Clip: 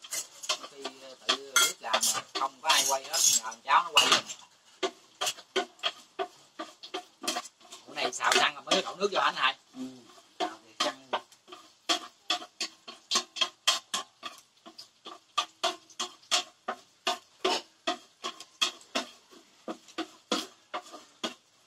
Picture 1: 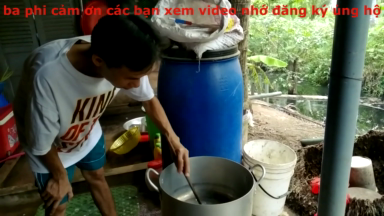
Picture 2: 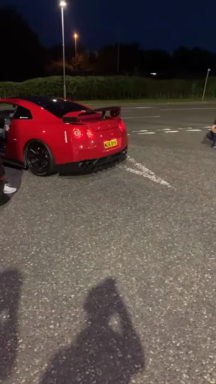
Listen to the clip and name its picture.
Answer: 1